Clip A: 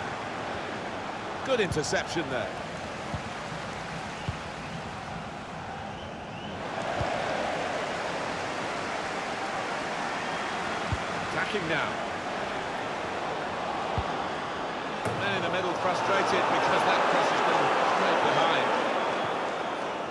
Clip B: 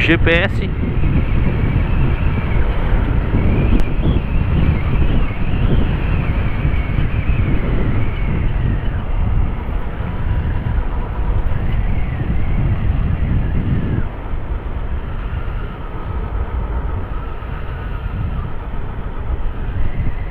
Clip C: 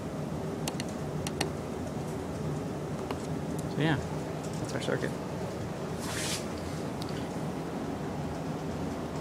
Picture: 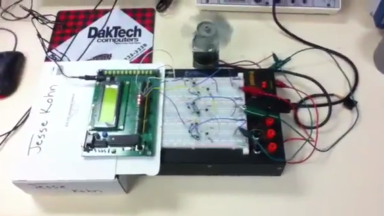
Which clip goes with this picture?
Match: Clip C